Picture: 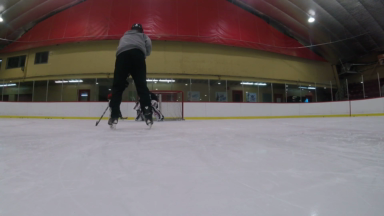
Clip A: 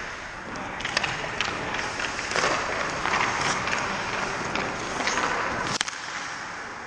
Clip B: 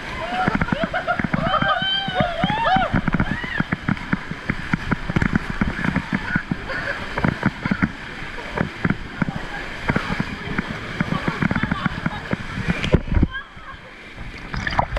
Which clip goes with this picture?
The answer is A